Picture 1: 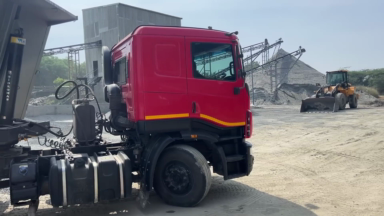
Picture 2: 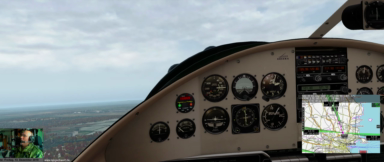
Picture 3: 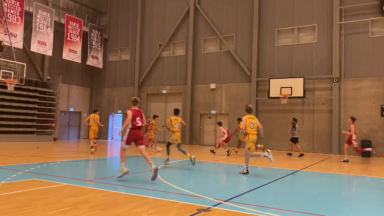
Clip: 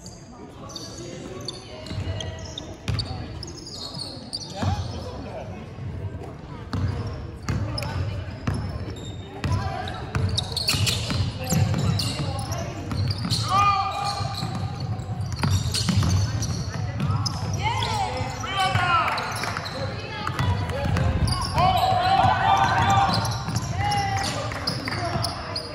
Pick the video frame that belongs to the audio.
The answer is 3